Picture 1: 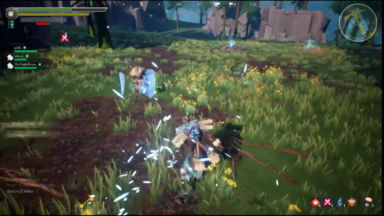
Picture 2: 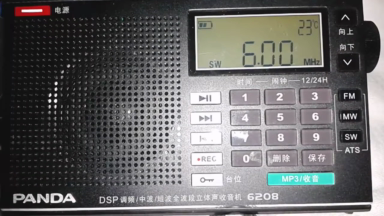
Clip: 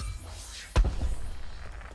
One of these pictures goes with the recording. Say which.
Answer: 1